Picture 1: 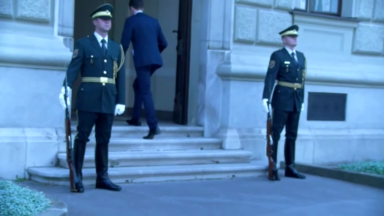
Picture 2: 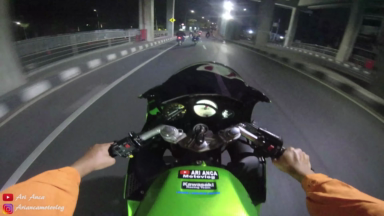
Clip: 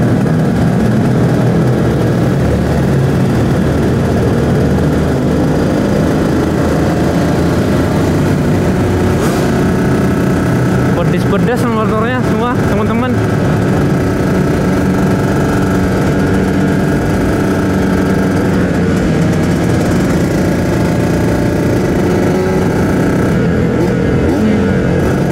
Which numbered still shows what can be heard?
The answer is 2